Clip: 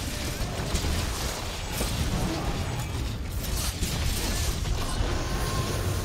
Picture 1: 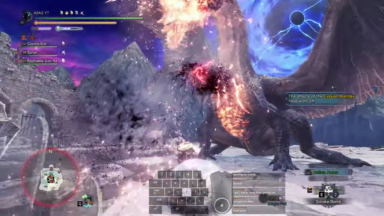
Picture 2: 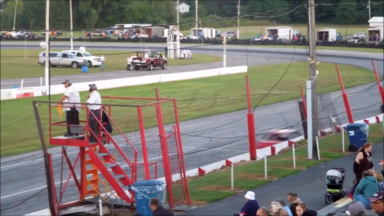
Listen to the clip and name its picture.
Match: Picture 1